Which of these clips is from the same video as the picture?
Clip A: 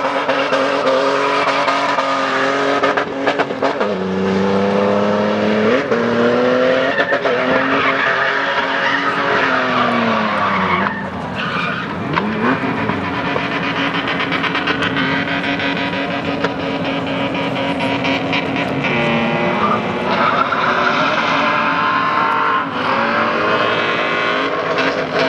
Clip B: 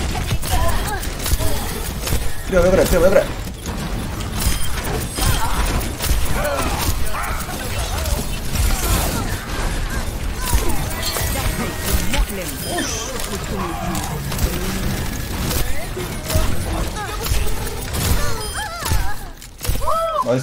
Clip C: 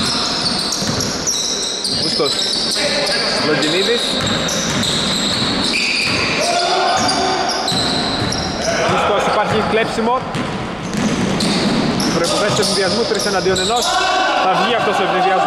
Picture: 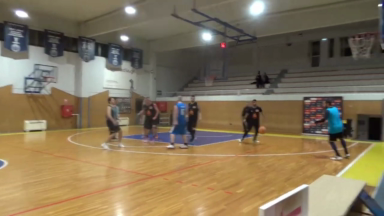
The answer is C